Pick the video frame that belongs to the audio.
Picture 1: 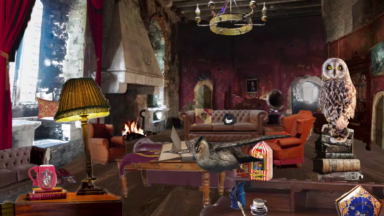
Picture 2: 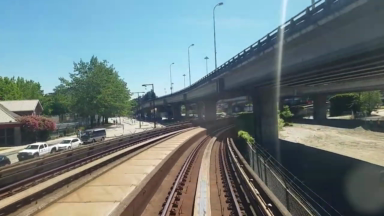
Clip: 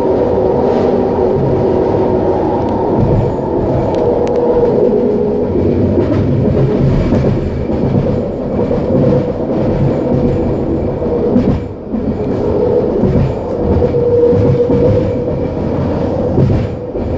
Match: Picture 2